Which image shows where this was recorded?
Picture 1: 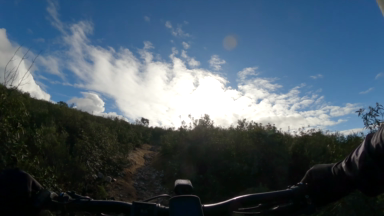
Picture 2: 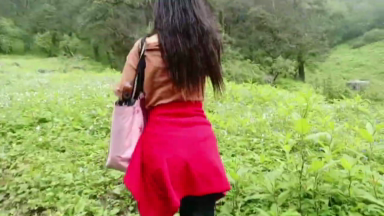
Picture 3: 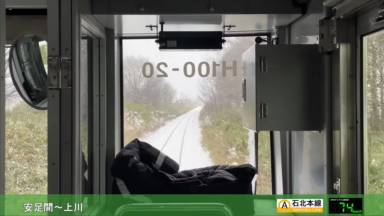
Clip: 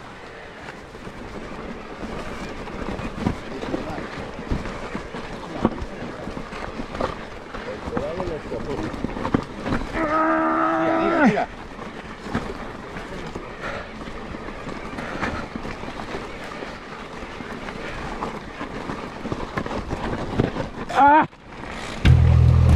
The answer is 1